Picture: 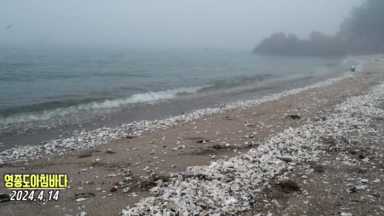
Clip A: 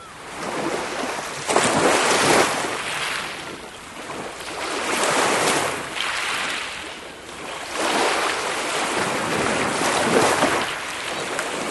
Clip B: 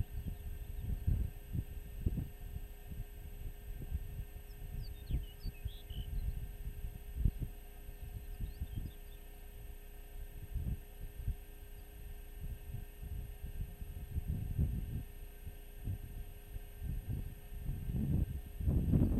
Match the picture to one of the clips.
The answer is A